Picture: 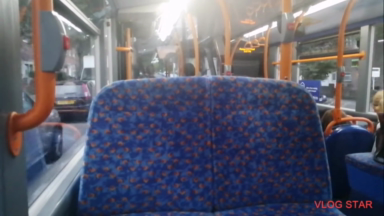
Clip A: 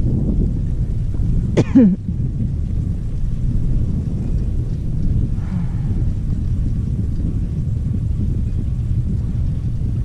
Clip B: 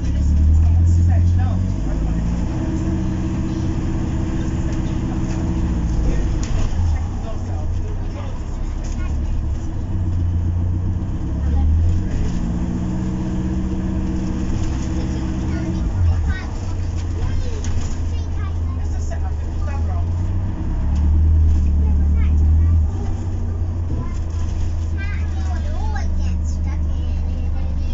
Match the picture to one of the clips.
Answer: B